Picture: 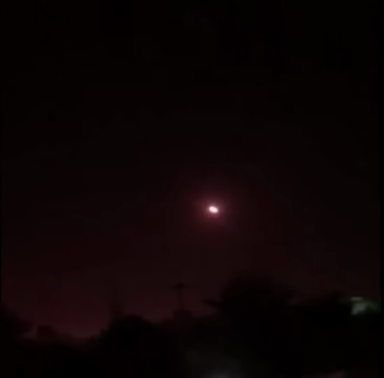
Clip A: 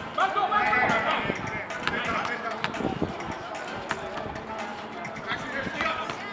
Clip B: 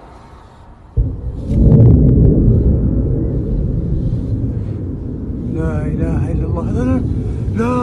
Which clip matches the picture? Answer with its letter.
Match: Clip B